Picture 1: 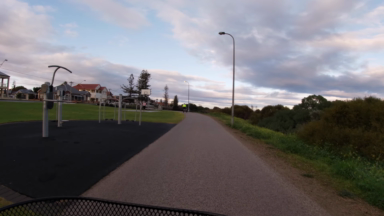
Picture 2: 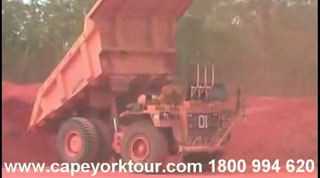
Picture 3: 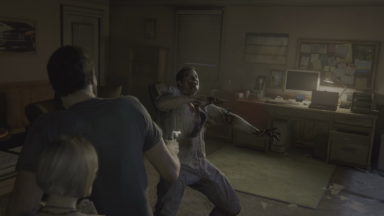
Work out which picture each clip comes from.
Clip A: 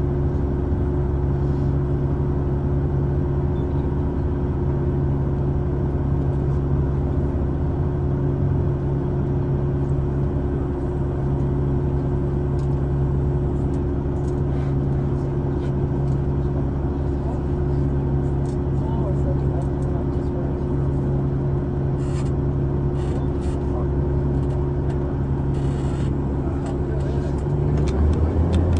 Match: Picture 2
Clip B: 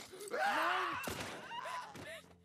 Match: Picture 3